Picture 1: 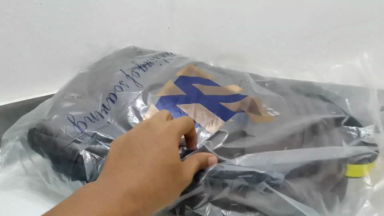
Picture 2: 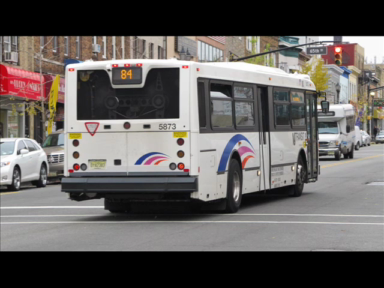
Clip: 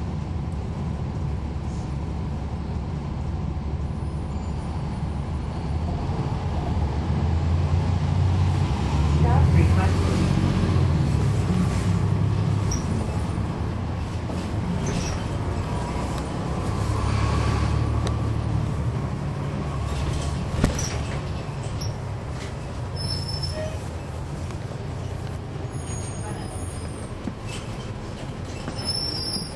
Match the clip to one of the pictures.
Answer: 2